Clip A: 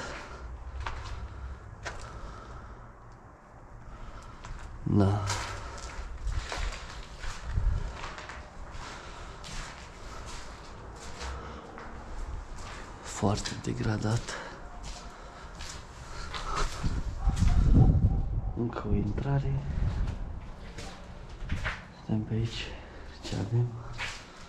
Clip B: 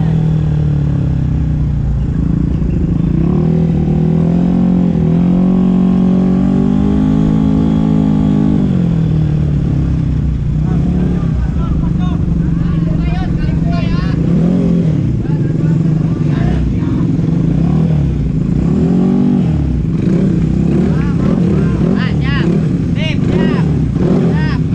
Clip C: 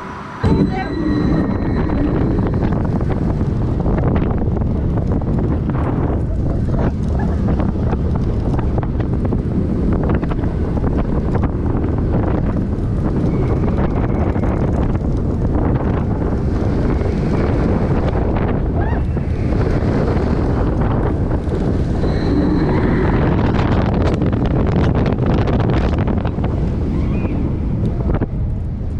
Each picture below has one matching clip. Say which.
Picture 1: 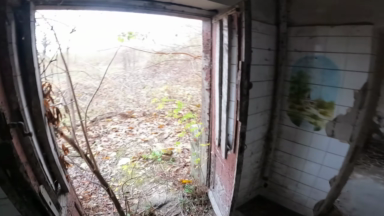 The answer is A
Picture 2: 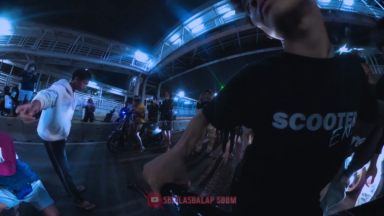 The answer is B